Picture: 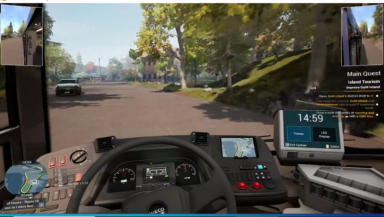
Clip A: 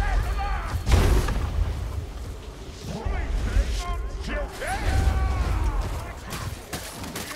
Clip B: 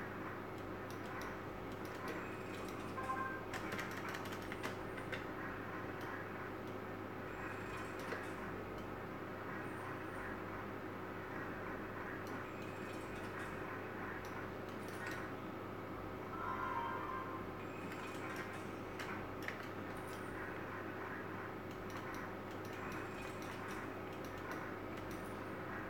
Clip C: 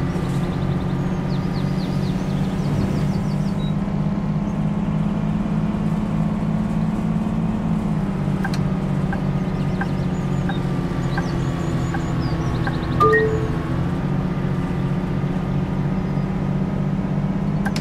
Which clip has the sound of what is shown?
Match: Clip C